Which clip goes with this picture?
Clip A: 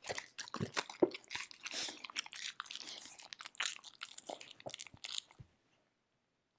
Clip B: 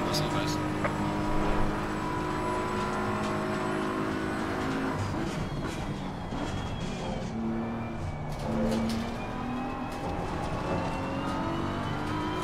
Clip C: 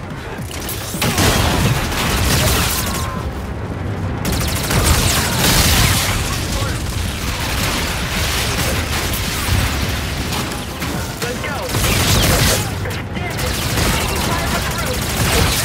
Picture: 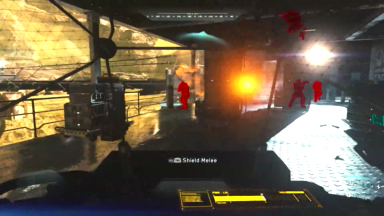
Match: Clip C